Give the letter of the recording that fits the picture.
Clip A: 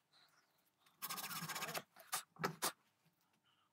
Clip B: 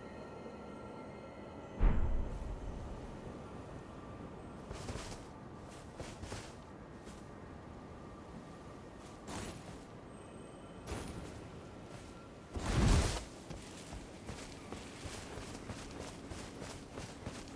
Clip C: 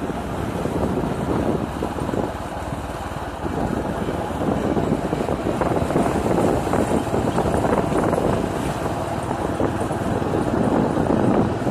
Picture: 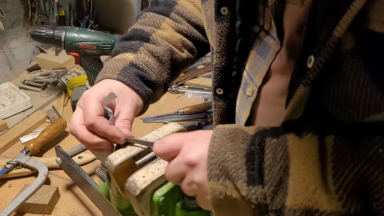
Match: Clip A